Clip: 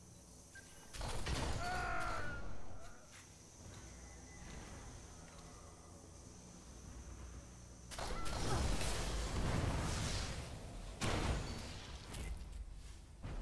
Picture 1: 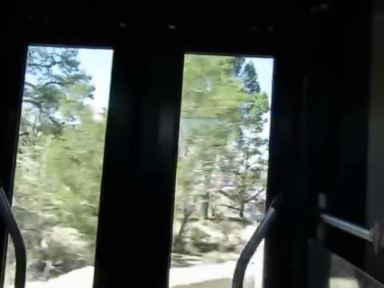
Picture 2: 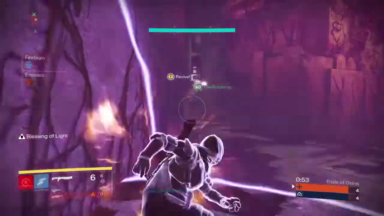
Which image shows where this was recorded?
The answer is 2